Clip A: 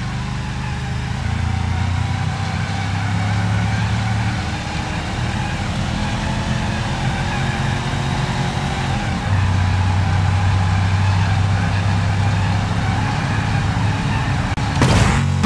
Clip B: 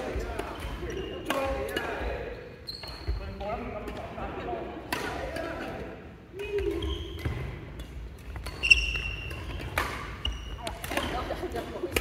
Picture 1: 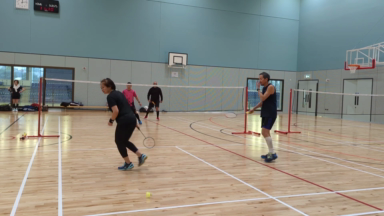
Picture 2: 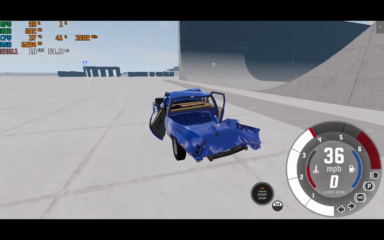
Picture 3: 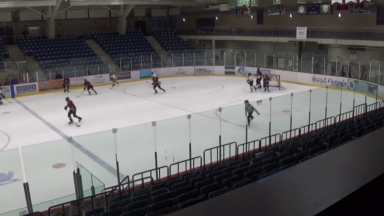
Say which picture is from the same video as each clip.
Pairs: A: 2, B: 1